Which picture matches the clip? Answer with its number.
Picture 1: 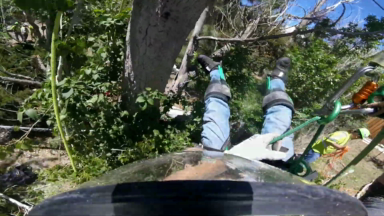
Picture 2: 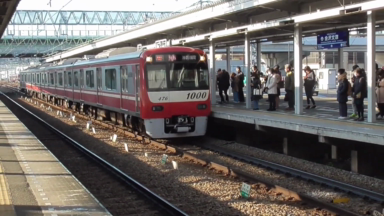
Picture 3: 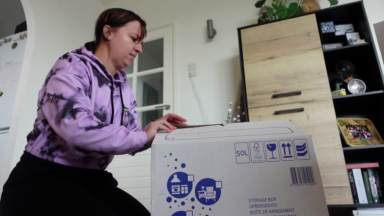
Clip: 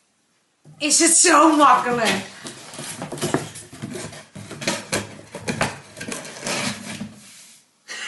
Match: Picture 3